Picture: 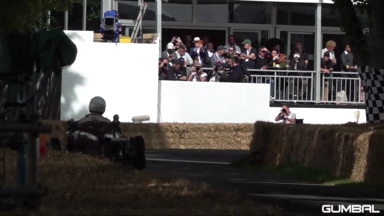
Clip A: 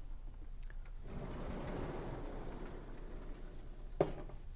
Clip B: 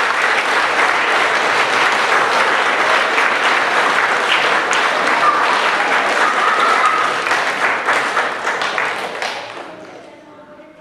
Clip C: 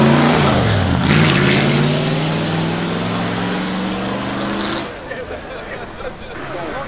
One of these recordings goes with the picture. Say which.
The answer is C